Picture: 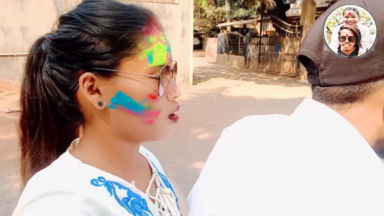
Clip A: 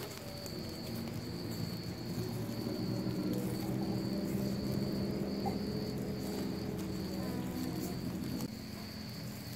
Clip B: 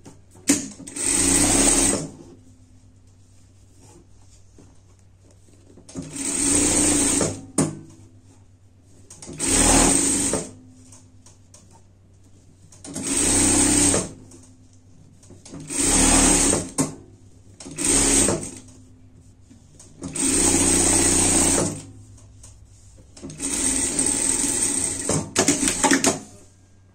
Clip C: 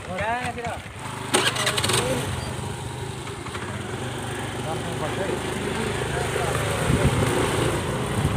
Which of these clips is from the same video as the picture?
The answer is C